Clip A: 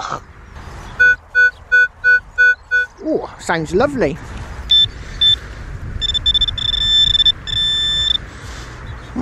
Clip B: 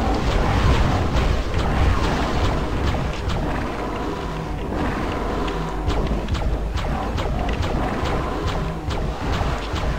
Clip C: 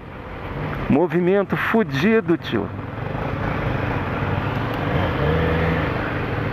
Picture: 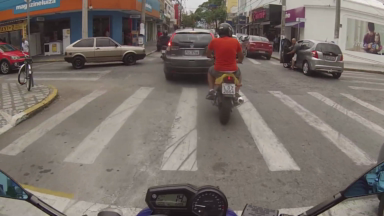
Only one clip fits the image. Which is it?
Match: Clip C